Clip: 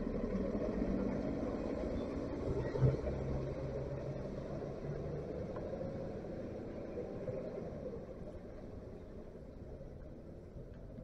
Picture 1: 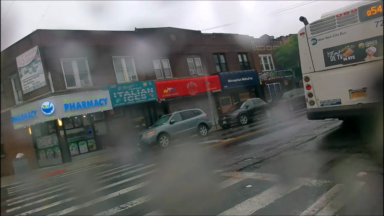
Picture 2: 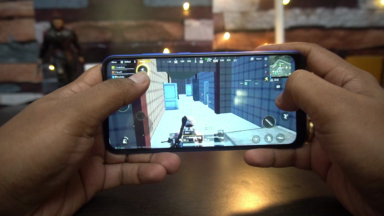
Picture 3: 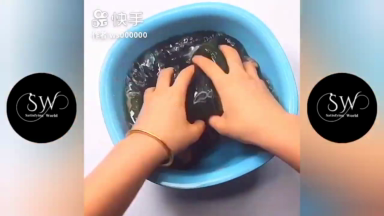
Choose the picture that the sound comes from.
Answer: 1